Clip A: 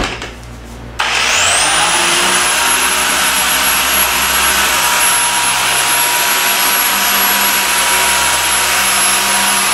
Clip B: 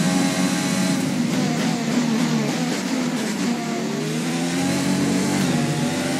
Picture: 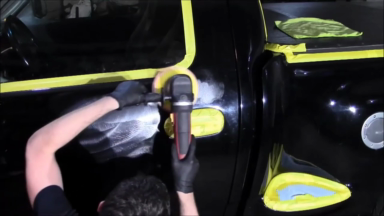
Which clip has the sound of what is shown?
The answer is A